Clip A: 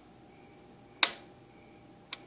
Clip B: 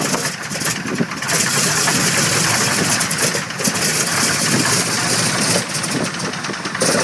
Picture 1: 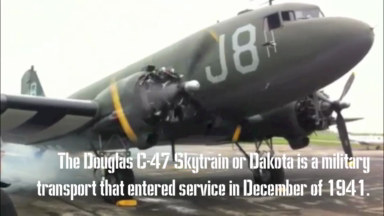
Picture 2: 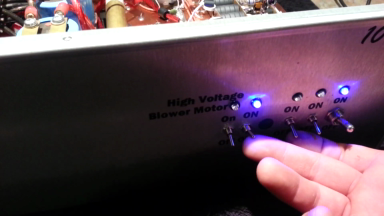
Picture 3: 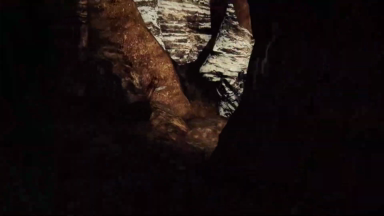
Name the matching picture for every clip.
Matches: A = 2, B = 1